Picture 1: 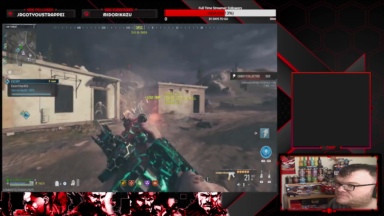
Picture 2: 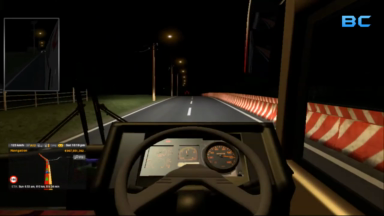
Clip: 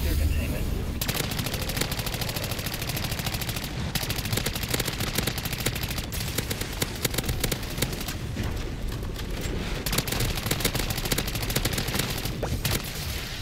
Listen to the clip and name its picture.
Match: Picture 1